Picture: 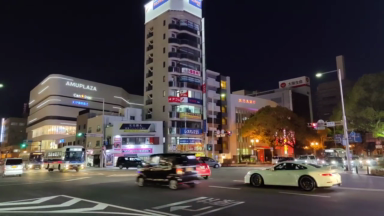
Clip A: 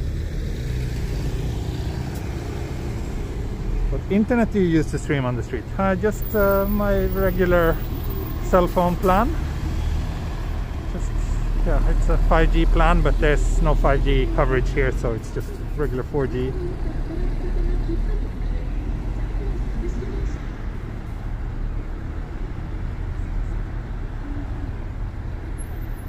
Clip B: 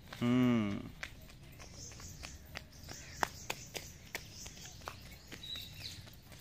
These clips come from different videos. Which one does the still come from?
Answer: A